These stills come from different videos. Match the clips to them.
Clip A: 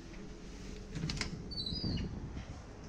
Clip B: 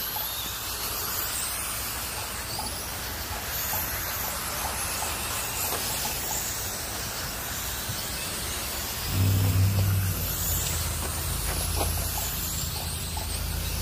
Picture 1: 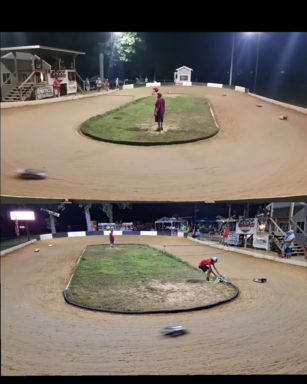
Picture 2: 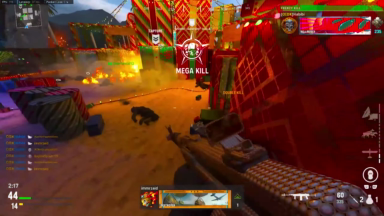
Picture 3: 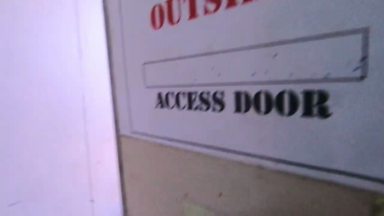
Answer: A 3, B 1